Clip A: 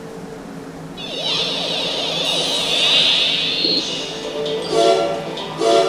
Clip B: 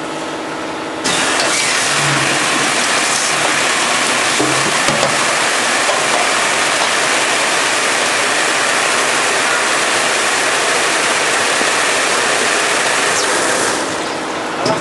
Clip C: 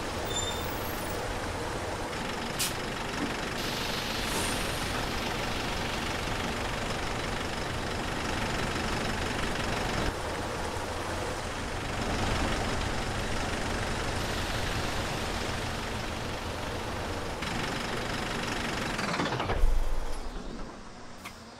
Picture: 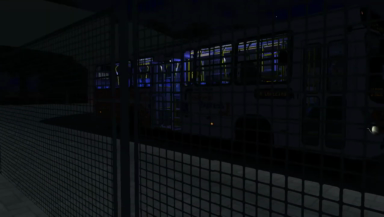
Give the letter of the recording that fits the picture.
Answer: C